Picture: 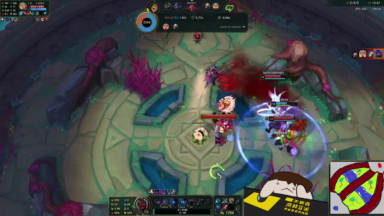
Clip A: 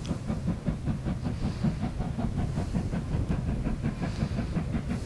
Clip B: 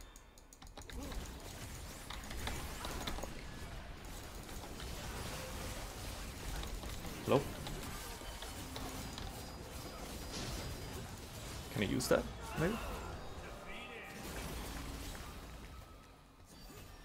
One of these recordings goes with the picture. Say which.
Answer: B